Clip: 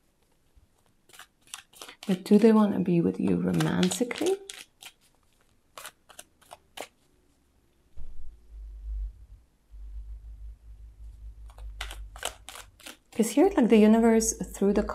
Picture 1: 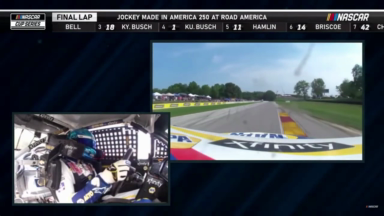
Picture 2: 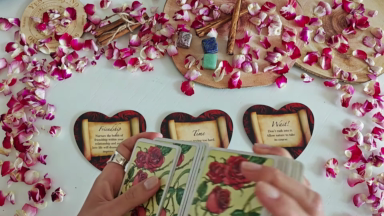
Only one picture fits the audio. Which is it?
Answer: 2